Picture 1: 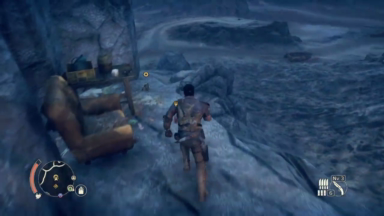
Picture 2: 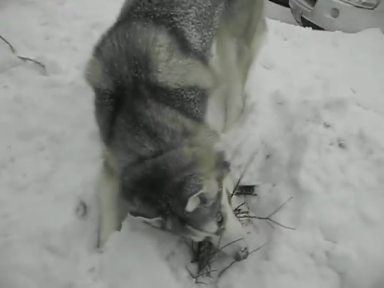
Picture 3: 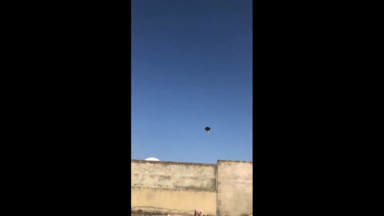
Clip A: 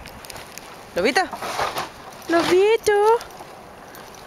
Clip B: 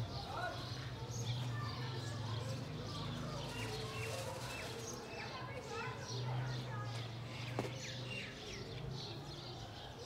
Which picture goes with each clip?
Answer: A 2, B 3